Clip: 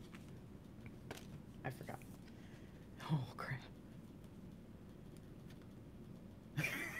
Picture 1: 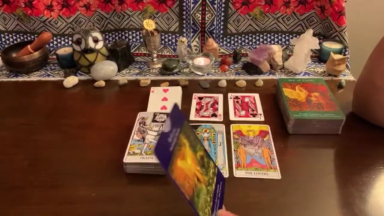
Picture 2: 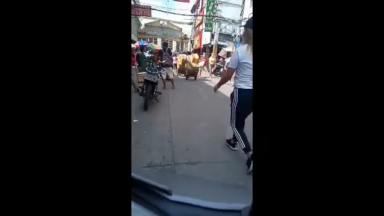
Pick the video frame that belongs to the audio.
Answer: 1